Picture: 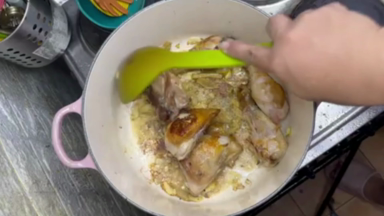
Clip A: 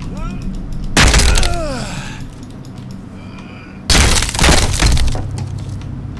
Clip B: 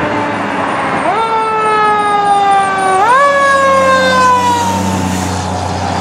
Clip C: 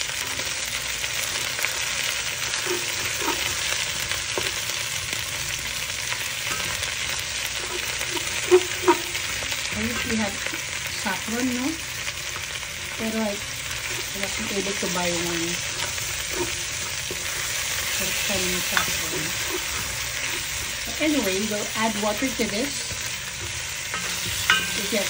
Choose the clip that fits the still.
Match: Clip C